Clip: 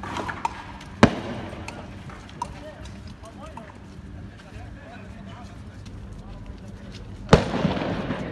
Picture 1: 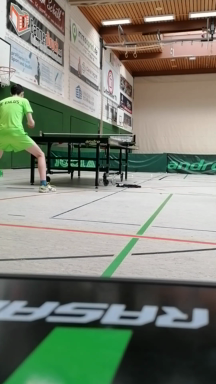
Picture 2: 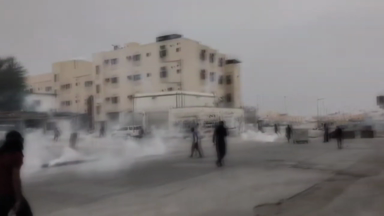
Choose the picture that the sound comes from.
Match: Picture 2